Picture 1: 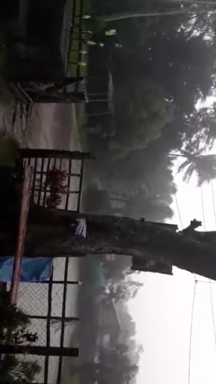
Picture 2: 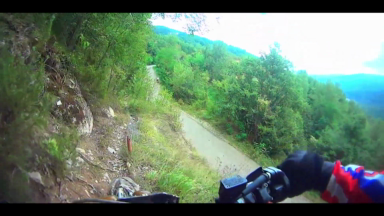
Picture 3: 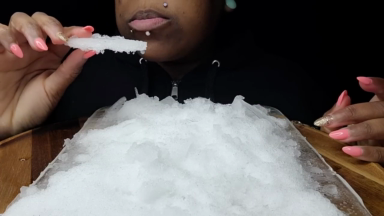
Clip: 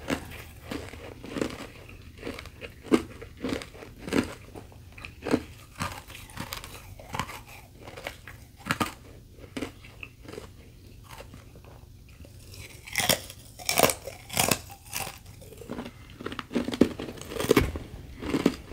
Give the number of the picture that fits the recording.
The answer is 3